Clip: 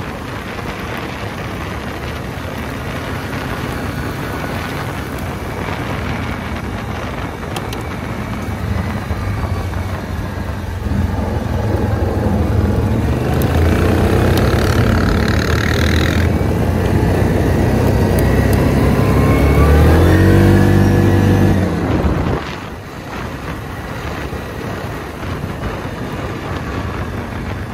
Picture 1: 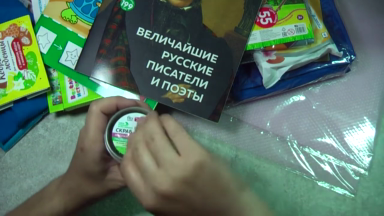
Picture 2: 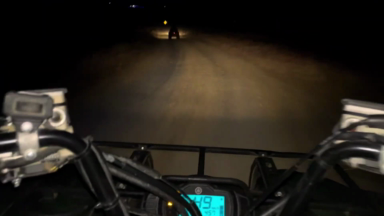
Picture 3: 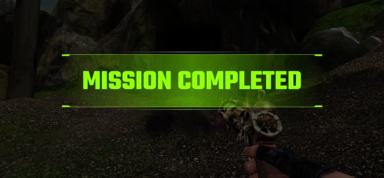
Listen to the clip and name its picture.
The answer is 2